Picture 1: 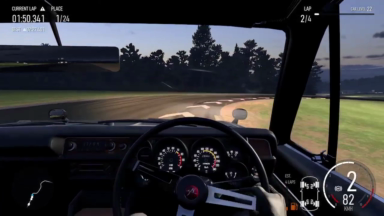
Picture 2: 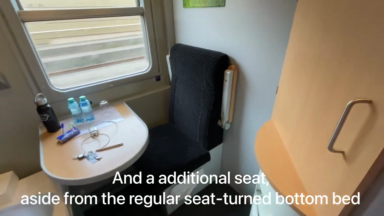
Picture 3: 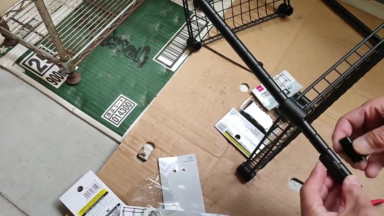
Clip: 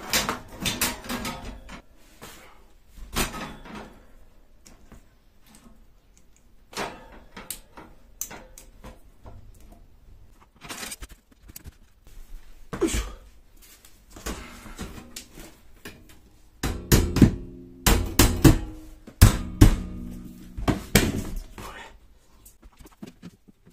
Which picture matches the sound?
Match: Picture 3